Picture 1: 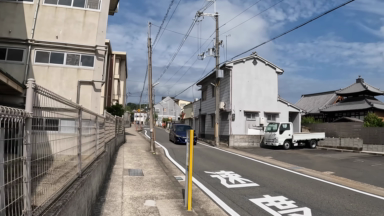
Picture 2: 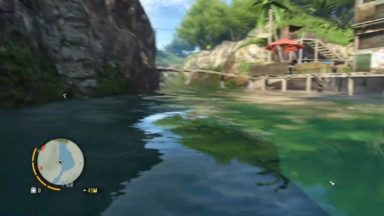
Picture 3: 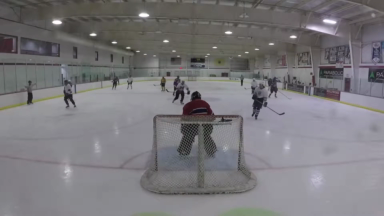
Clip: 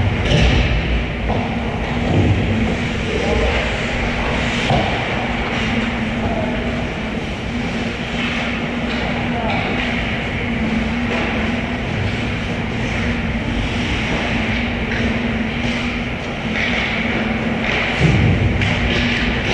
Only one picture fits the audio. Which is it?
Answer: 3